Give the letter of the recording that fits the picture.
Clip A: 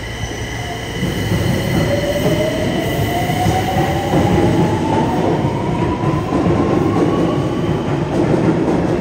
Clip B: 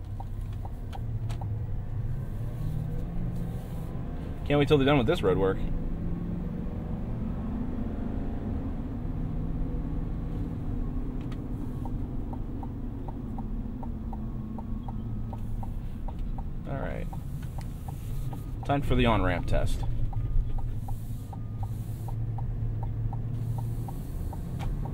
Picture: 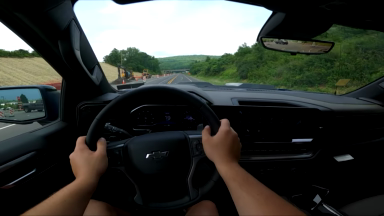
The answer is B